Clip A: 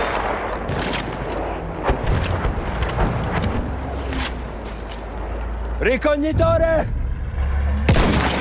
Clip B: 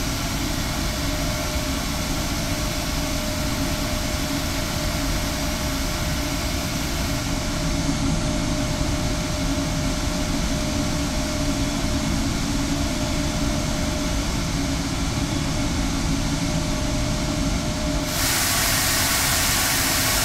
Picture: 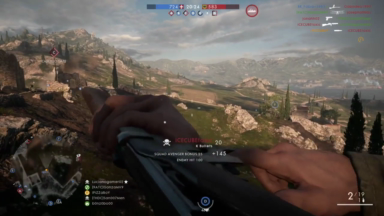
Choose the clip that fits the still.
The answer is A